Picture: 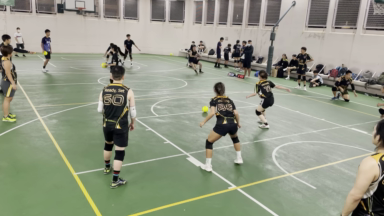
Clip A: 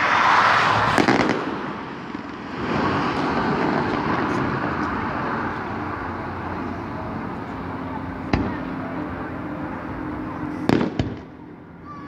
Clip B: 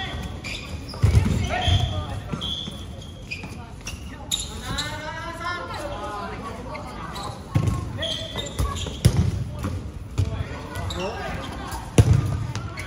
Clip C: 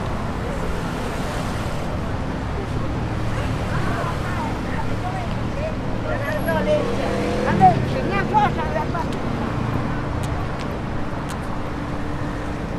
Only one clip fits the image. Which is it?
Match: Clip B